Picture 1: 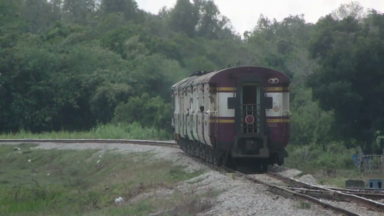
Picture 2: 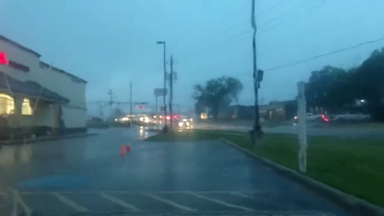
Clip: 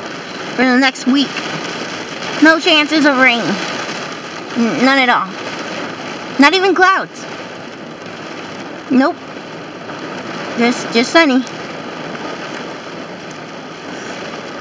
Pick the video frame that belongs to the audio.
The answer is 2